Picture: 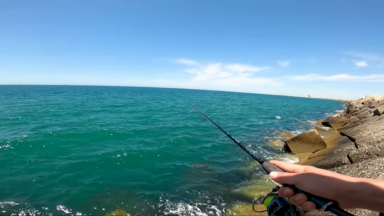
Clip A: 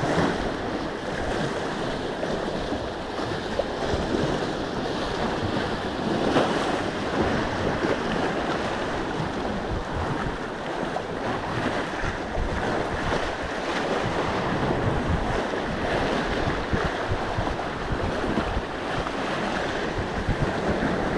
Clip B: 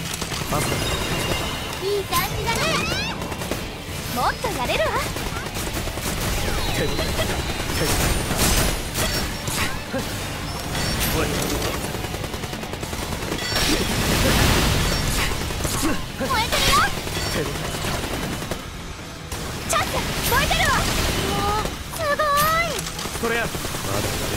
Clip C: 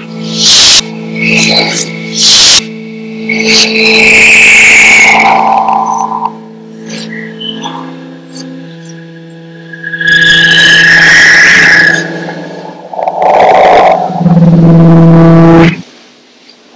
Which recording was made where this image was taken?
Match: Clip A